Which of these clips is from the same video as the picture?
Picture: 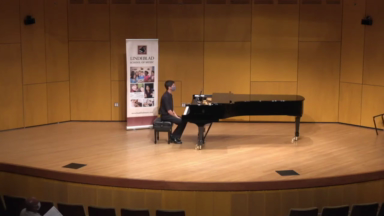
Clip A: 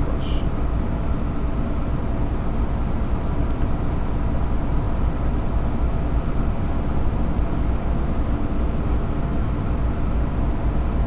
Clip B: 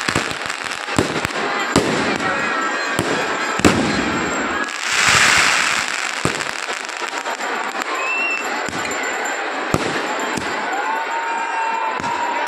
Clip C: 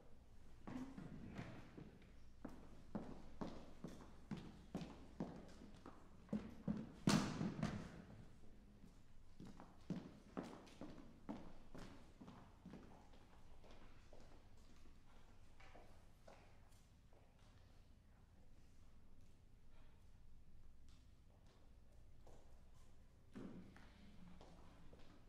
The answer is C